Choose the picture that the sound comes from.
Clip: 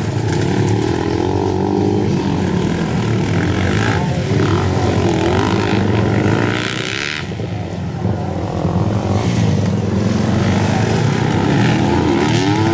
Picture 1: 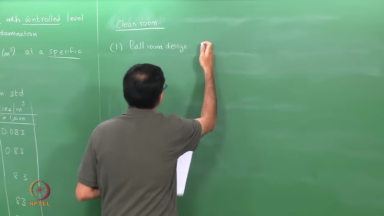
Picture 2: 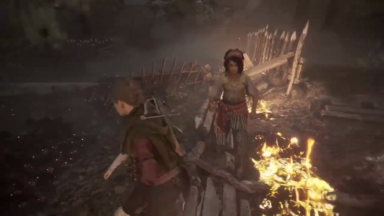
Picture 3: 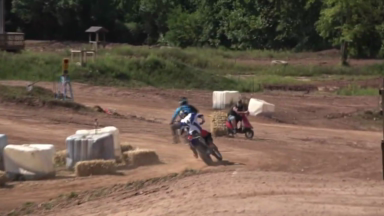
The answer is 3